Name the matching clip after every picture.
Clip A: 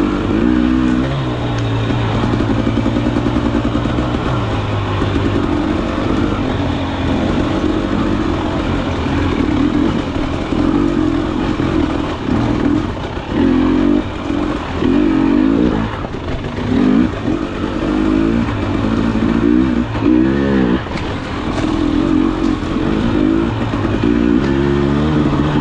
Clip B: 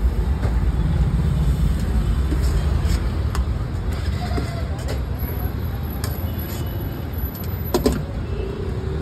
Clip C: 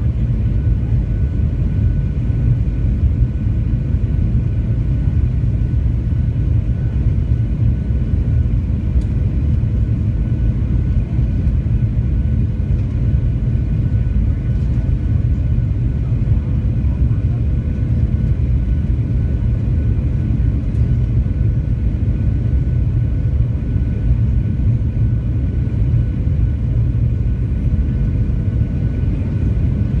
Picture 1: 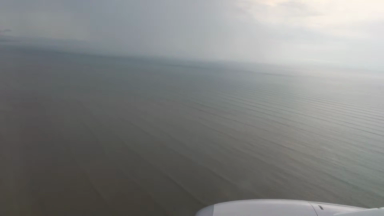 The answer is C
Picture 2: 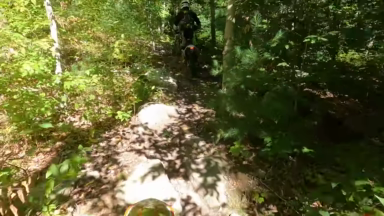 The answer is A